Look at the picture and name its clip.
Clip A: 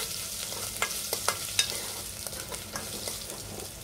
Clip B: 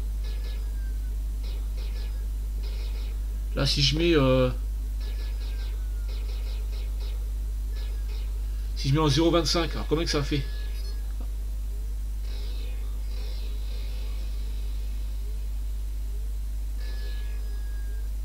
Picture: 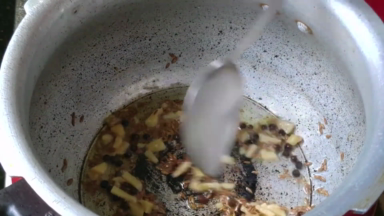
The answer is A